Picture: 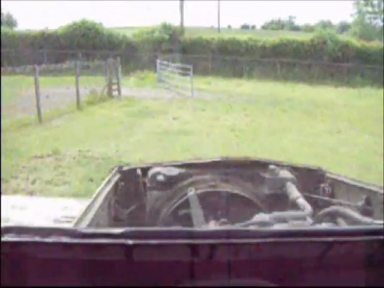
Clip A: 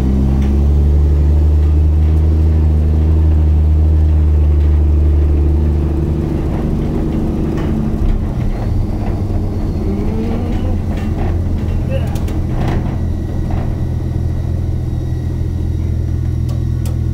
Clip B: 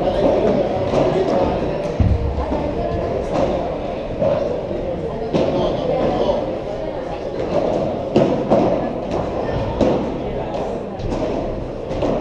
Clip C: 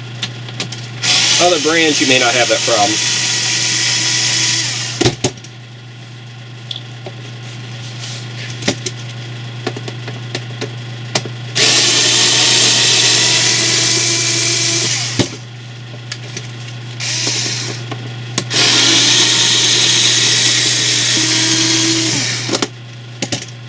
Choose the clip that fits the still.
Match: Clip A